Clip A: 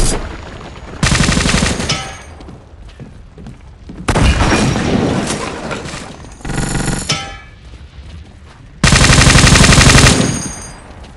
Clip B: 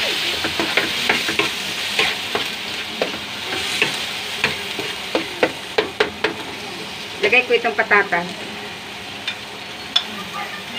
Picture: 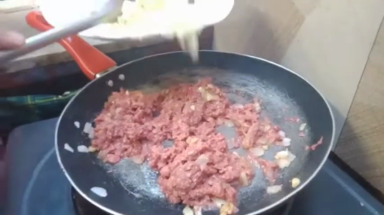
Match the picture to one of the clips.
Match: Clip B